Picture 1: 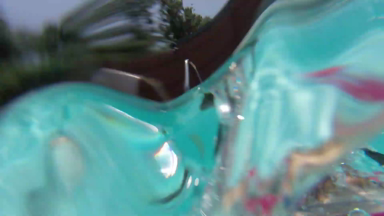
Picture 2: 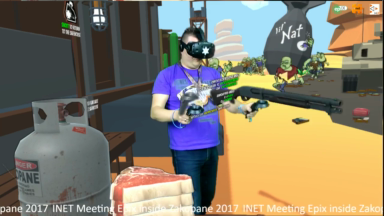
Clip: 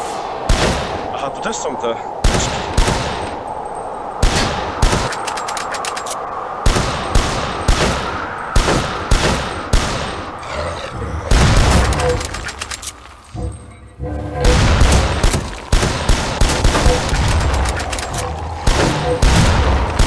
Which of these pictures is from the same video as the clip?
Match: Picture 2